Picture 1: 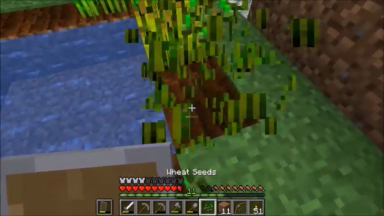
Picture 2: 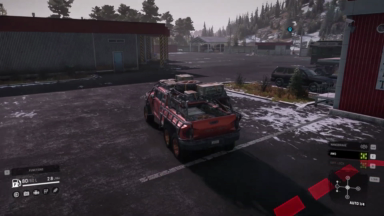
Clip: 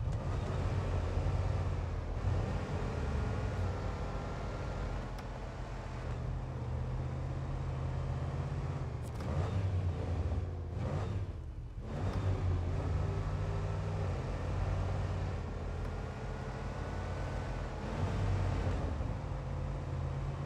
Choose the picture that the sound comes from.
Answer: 2